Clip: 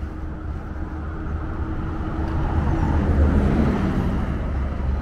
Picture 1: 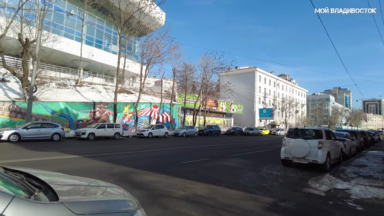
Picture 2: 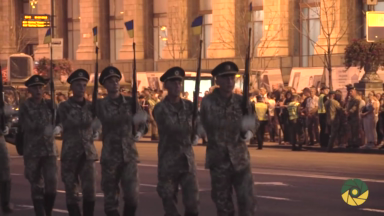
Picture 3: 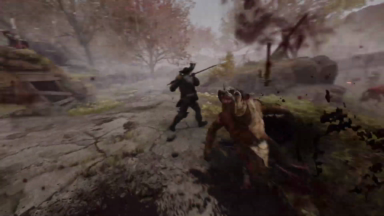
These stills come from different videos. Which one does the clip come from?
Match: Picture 1